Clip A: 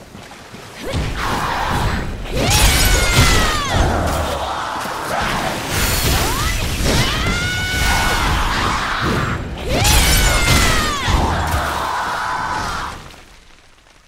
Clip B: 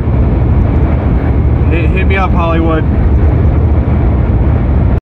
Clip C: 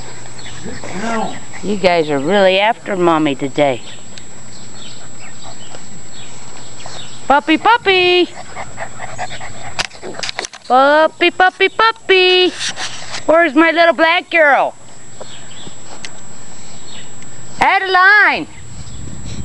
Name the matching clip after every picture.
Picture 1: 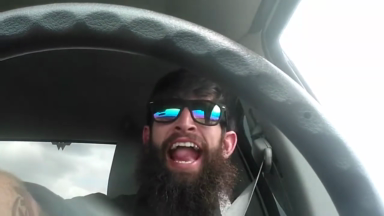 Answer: B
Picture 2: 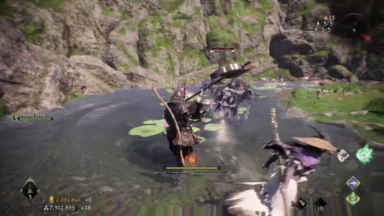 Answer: A